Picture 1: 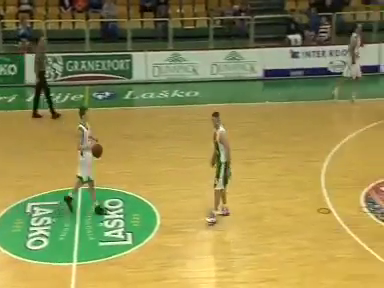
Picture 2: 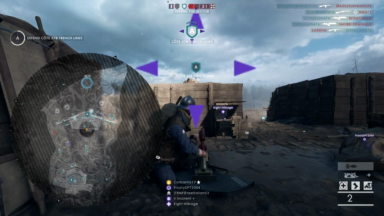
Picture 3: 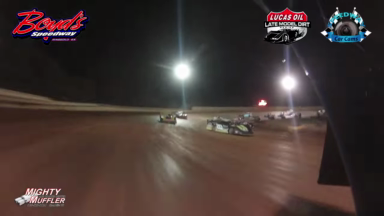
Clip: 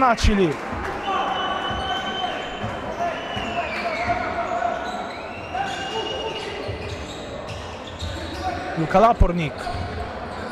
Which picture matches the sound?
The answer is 1